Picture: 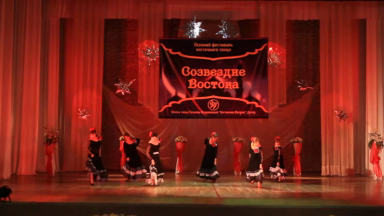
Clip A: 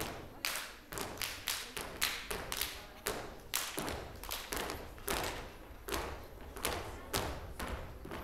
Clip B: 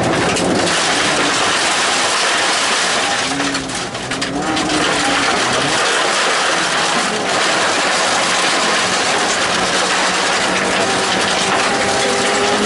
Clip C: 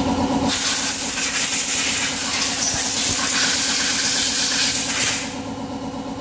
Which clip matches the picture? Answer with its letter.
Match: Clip A